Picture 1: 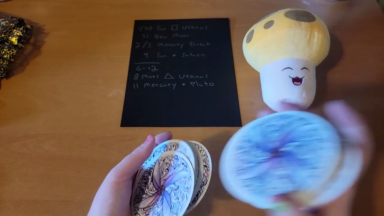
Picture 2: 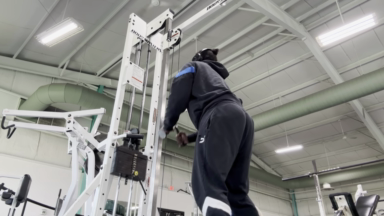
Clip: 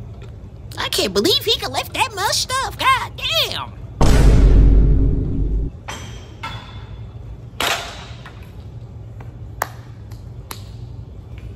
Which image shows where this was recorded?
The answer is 2